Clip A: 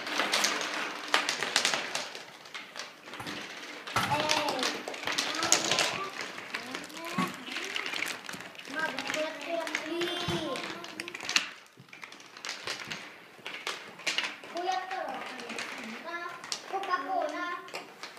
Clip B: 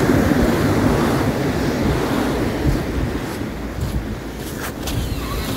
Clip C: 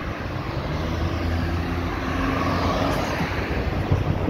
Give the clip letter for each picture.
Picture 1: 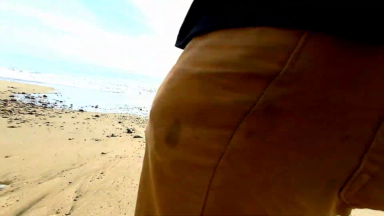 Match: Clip B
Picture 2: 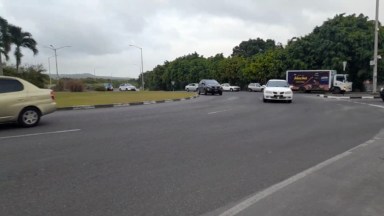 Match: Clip C